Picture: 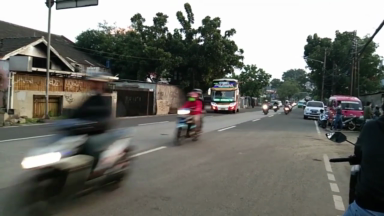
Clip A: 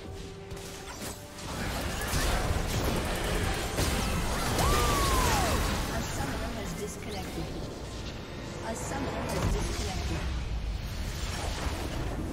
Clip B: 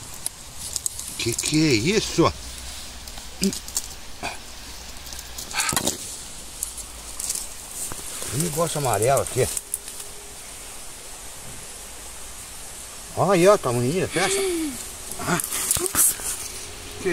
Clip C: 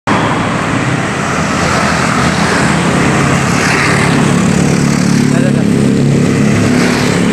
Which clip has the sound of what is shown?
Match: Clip C